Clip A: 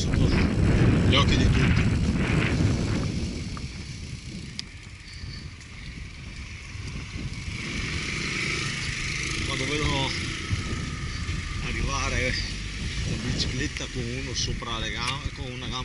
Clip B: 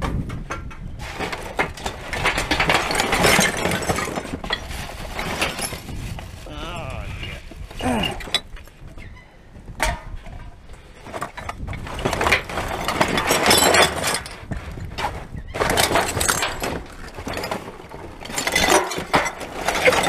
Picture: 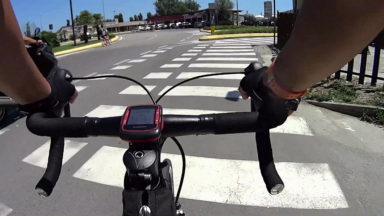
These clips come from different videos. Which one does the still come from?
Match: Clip A